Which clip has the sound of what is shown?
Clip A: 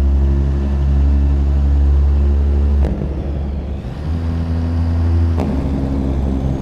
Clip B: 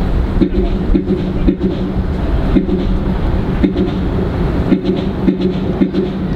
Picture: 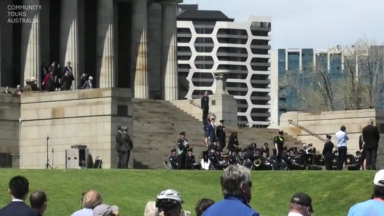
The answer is B